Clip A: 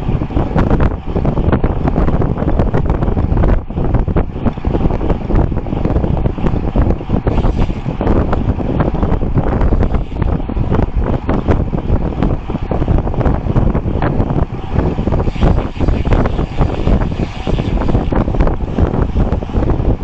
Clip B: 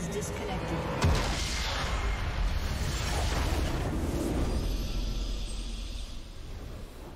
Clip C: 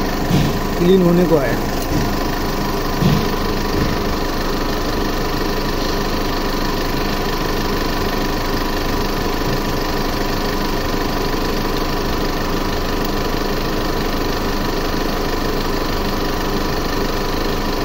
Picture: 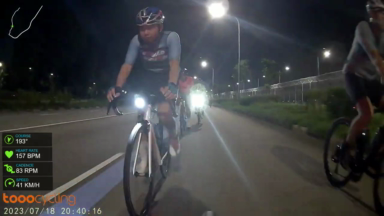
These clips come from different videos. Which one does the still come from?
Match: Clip A